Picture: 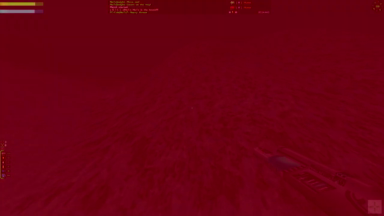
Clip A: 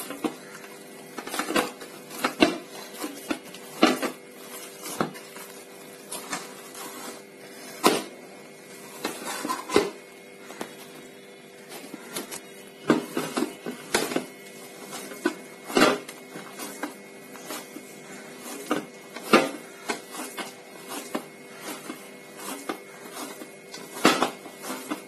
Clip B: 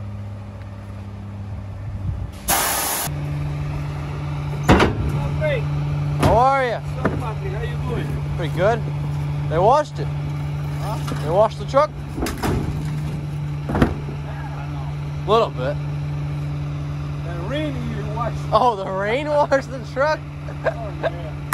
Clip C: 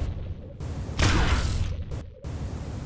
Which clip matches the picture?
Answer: C